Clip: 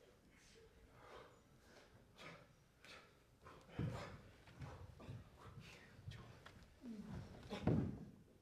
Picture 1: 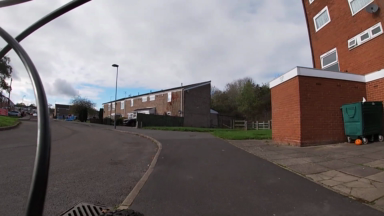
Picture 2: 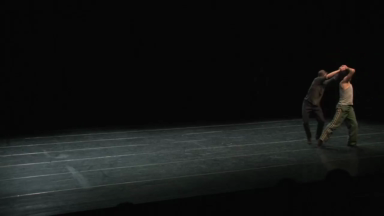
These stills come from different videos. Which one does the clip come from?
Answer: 2